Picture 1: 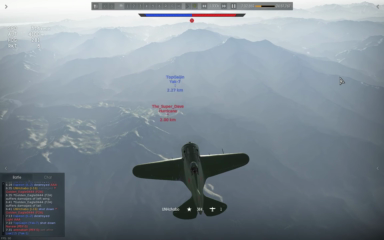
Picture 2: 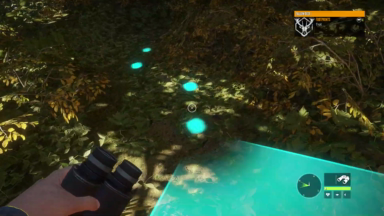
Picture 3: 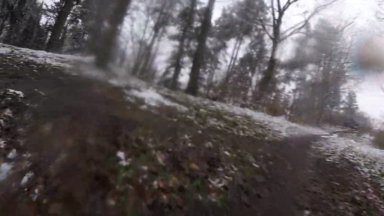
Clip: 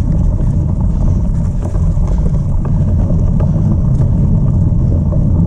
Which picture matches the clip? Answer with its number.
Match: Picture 3